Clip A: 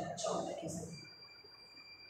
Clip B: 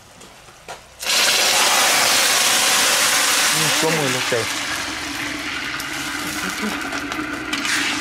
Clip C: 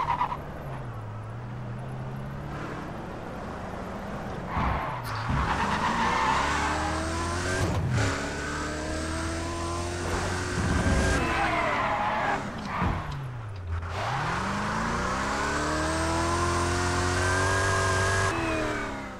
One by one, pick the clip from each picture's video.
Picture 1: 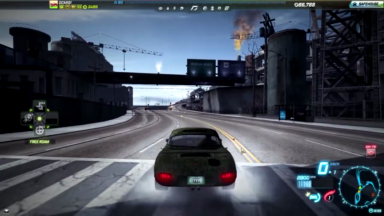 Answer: C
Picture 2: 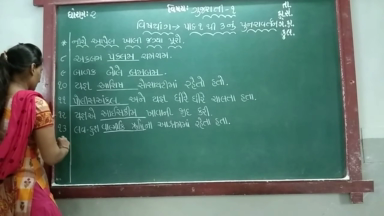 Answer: A